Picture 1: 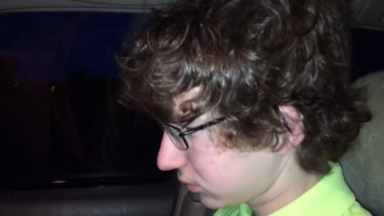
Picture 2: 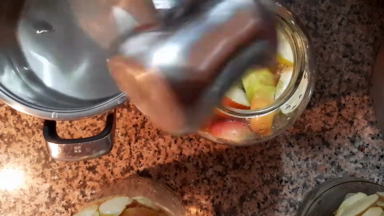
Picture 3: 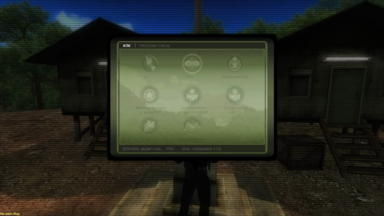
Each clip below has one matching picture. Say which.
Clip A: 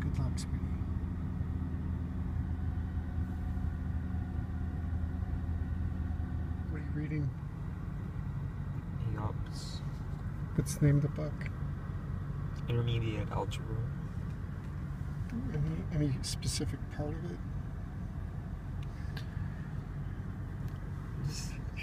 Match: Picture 1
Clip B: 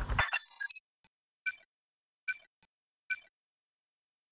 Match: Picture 3